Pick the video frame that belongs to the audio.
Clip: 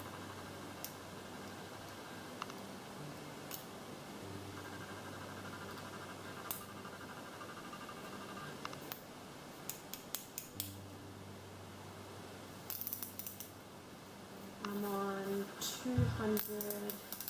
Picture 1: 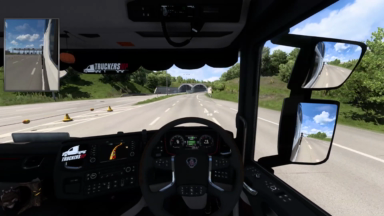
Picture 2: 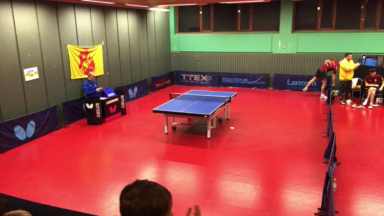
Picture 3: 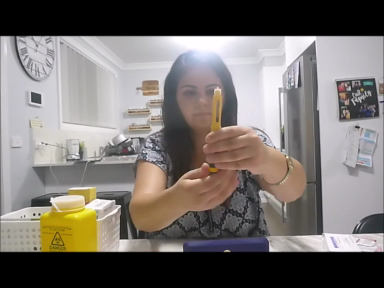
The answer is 3